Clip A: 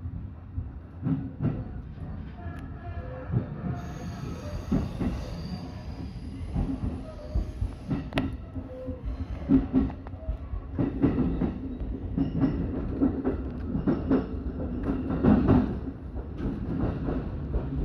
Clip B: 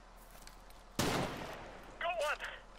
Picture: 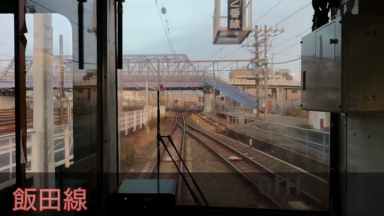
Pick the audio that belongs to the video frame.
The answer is A